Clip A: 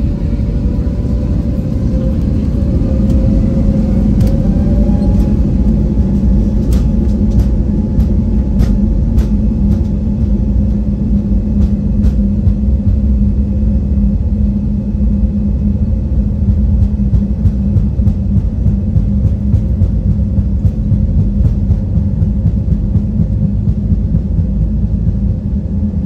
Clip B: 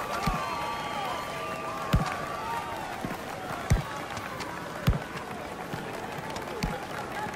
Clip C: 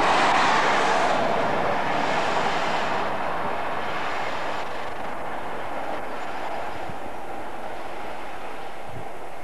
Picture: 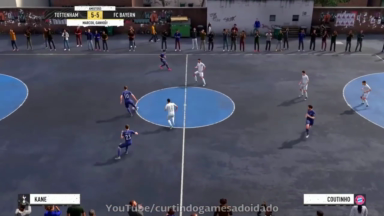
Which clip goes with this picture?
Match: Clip B